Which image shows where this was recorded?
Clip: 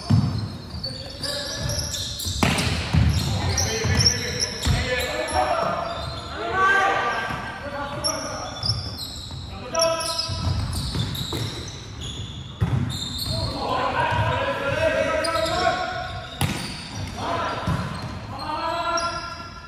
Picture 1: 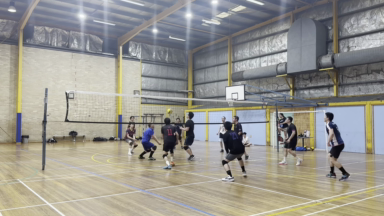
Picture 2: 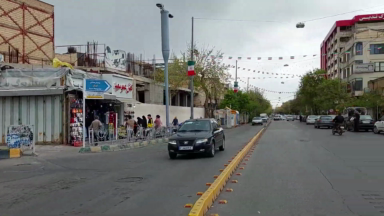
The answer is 1